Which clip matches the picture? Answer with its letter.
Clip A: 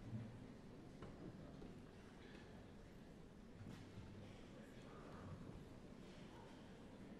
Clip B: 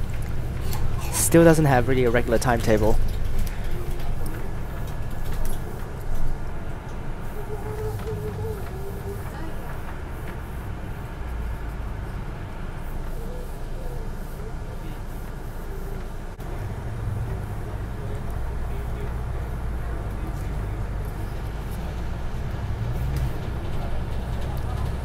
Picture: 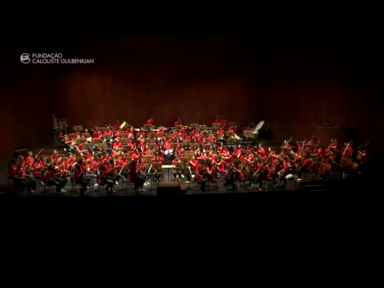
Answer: A